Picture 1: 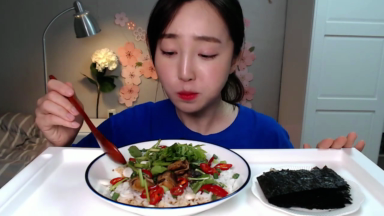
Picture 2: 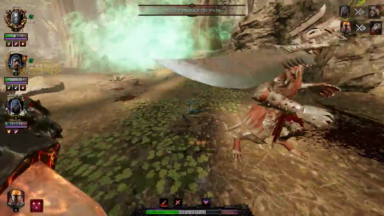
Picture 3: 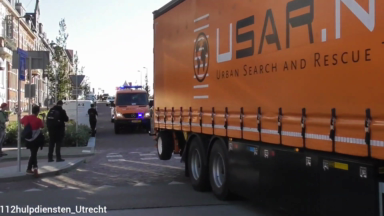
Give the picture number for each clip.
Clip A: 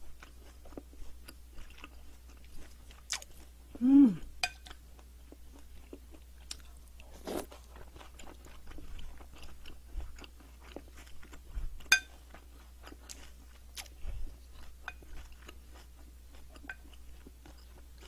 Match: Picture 1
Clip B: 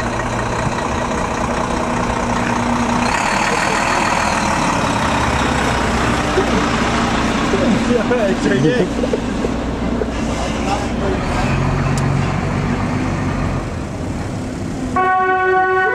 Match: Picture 3